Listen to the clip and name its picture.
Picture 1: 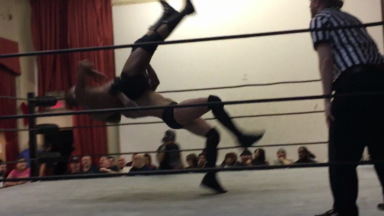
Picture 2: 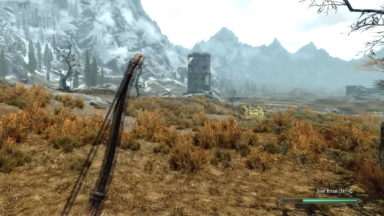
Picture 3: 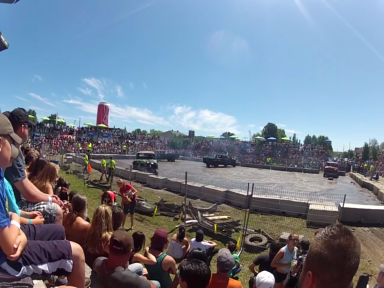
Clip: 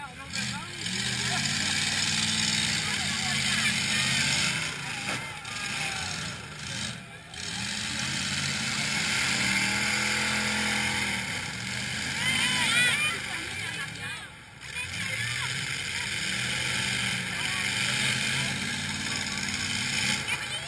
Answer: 3